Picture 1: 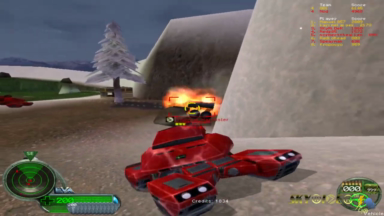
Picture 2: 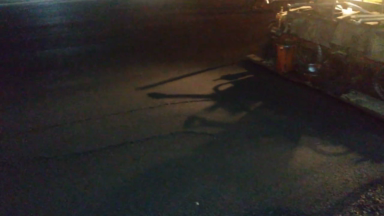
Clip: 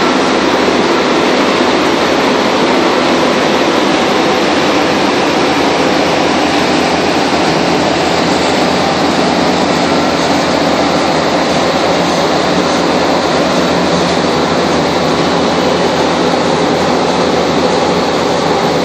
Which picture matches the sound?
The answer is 2